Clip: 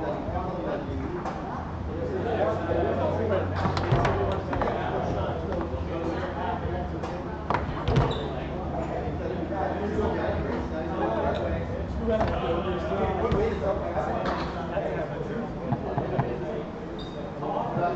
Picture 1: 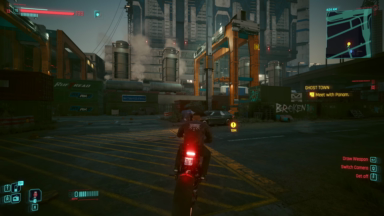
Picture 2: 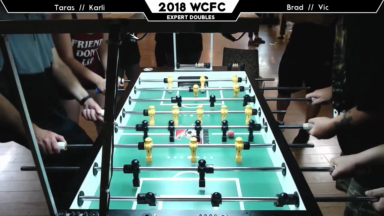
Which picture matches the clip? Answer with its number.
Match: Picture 2